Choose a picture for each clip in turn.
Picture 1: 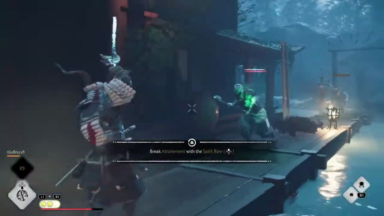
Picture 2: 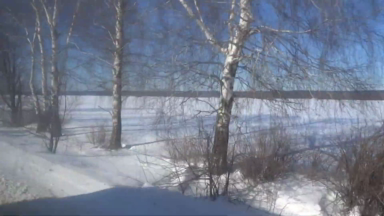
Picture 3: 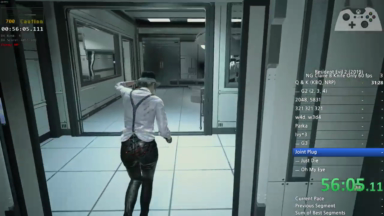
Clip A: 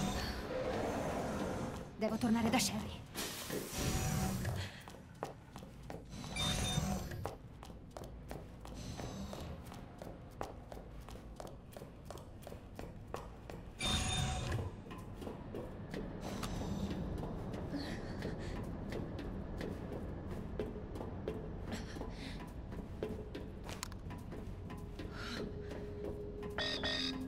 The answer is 3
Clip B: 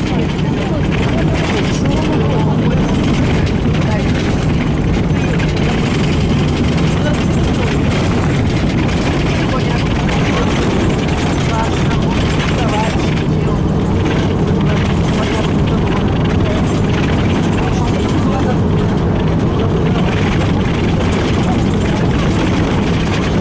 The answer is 2